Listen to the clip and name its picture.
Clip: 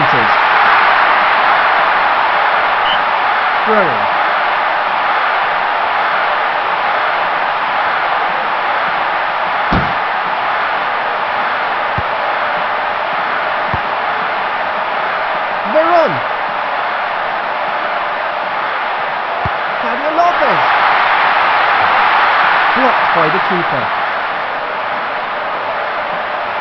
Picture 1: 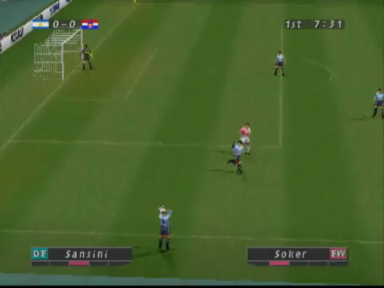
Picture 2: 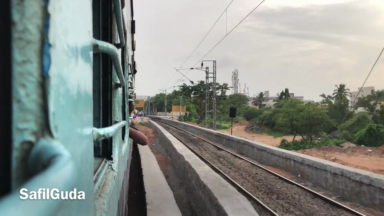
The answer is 1